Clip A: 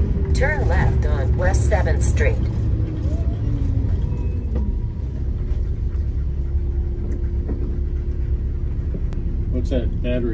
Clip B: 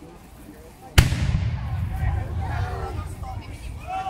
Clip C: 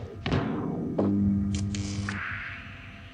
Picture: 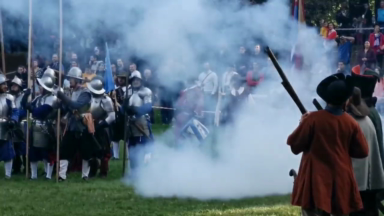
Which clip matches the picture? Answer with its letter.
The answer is B